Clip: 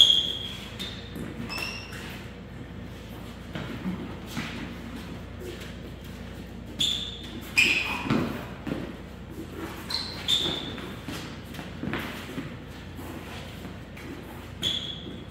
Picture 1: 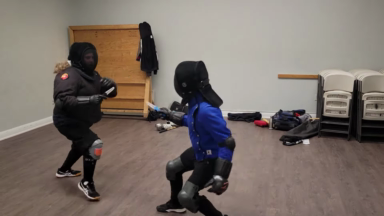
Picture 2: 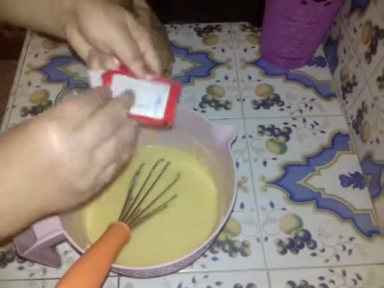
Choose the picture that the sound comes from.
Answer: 1